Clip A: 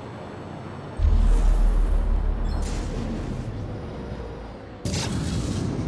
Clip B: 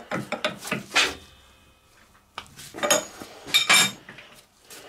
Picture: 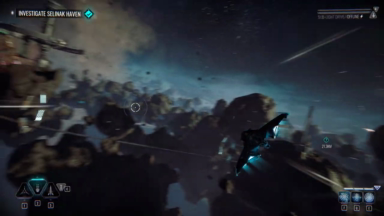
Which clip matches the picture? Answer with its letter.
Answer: A